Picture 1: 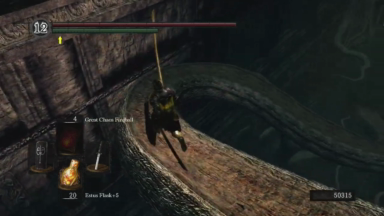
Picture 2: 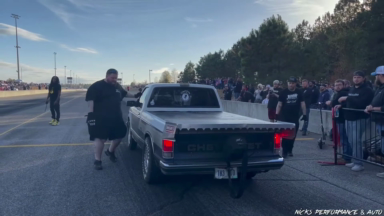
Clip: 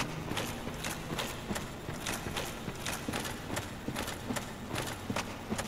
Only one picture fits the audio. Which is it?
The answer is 1